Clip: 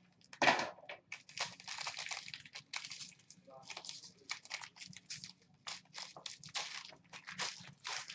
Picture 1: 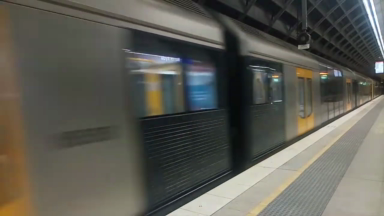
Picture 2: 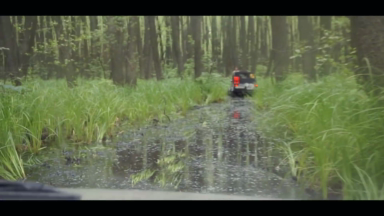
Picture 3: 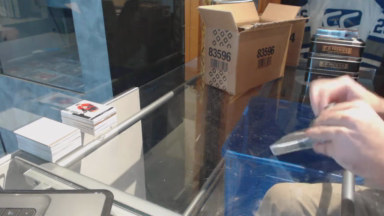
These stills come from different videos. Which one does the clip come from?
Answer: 3